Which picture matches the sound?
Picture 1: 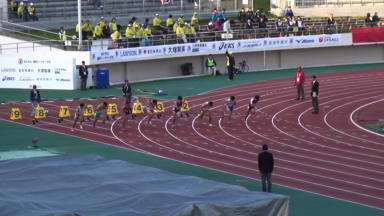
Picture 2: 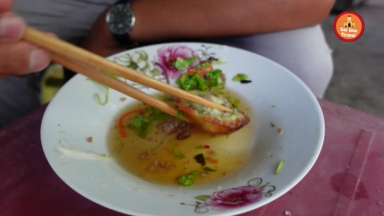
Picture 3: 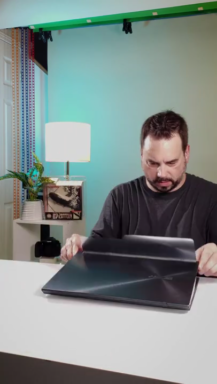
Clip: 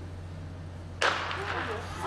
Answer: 1